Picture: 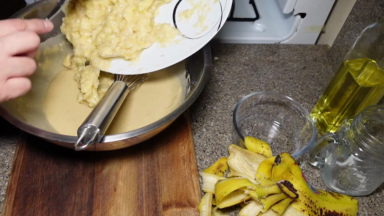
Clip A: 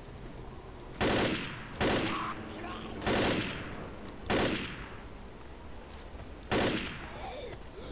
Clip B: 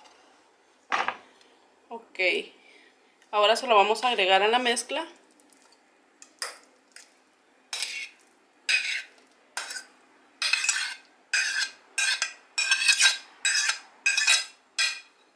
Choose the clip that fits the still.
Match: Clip B